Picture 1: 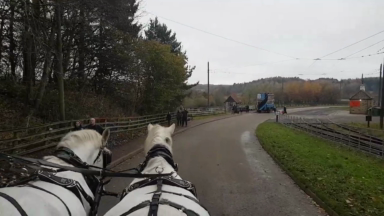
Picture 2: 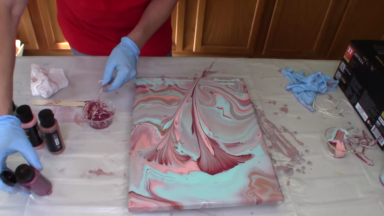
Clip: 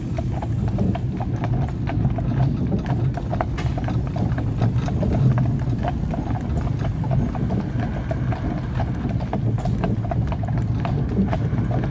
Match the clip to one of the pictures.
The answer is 1